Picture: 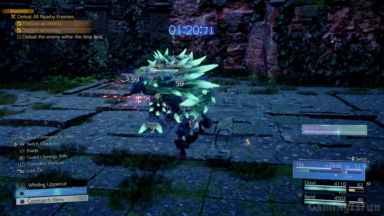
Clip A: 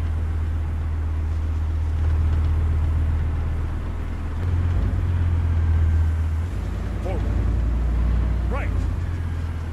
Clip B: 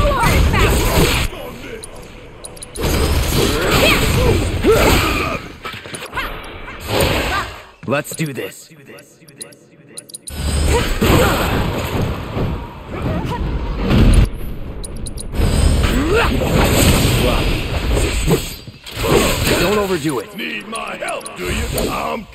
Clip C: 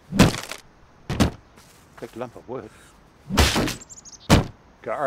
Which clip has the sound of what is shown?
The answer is B